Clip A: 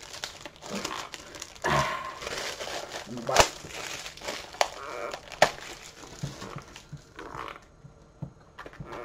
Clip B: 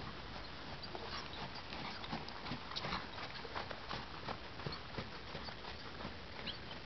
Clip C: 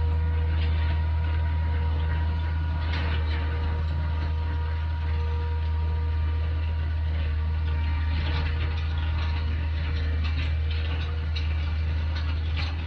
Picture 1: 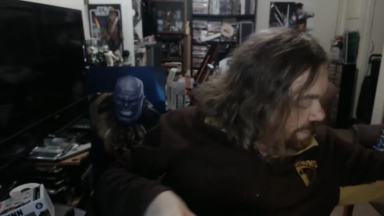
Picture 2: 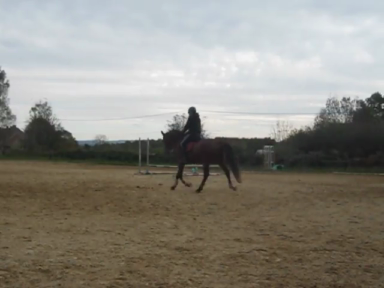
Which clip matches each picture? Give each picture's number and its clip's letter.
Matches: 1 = A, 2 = B